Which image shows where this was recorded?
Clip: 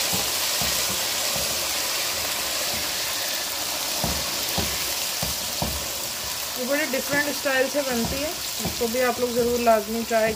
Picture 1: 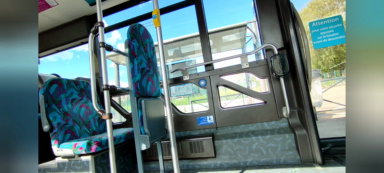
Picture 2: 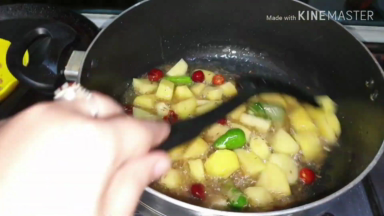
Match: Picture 2